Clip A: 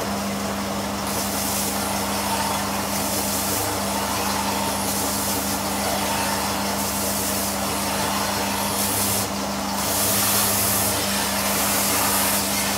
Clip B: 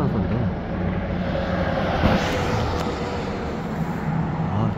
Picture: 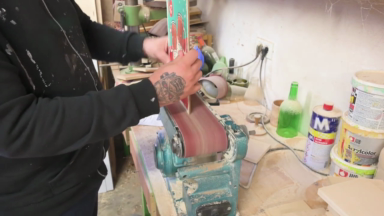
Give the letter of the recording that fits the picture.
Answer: A